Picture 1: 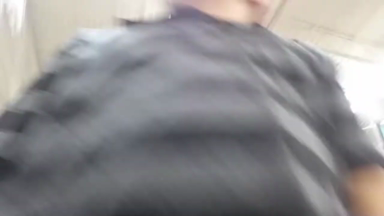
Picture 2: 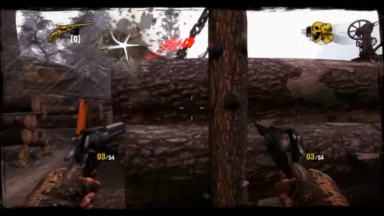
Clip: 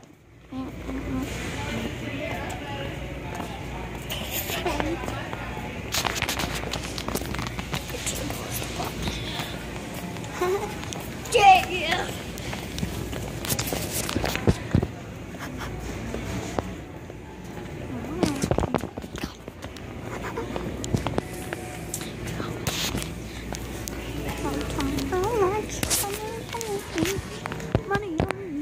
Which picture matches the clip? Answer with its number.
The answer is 1